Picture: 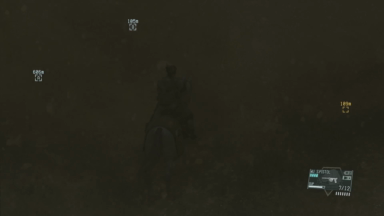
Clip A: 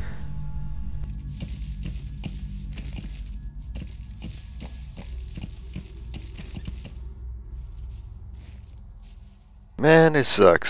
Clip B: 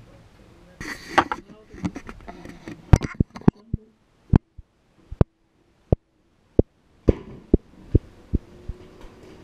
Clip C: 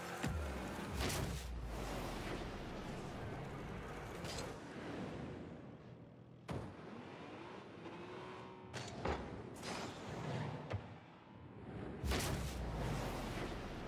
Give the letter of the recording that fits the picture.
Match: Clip A